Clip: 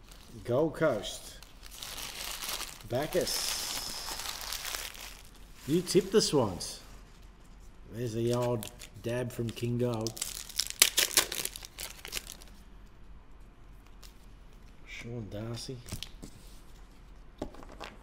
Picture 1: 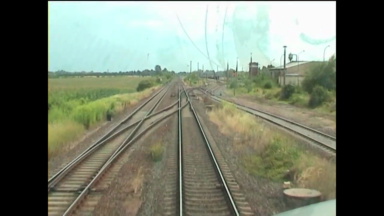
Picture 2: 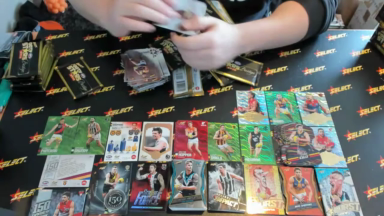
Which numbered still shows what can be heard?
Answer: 2